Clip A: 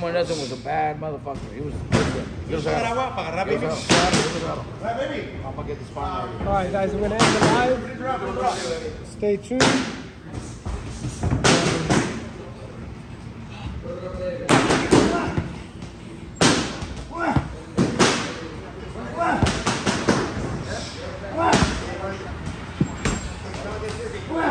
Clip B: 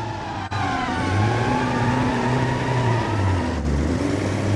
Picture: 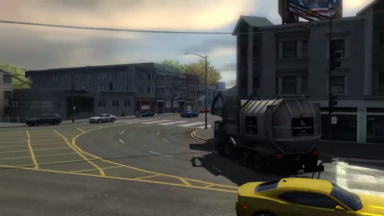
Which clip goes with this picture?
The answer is B